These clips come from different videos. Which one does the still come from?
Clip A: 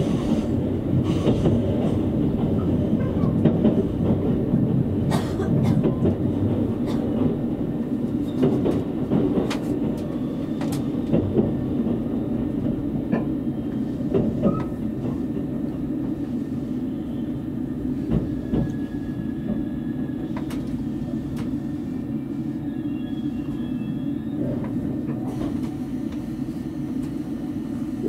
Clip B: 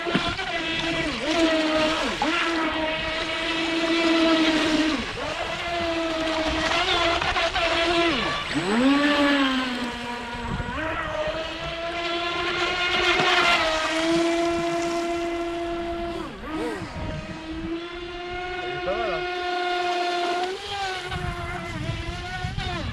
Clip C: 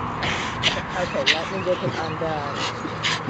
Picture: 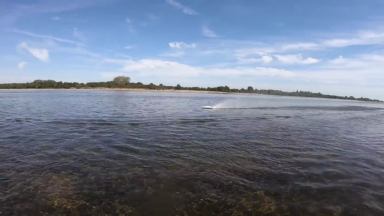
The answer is B